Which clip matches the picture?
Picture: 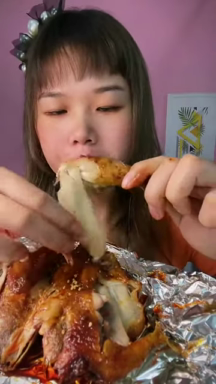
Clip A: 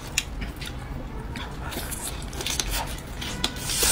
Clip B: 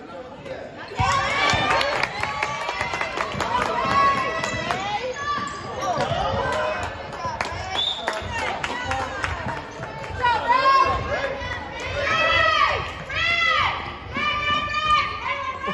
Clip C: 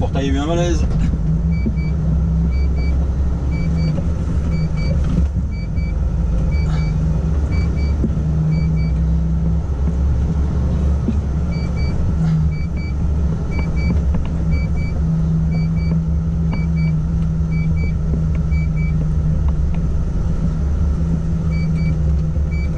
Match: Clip A